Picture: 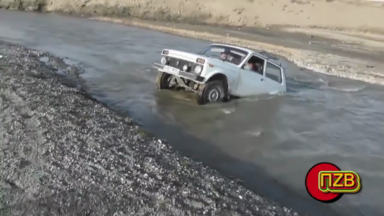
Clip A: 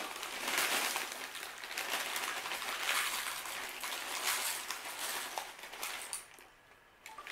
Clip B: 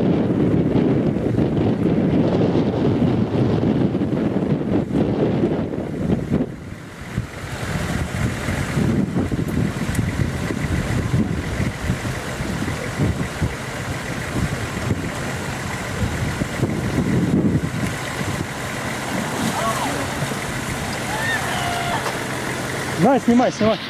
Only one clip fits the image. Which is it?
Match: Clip B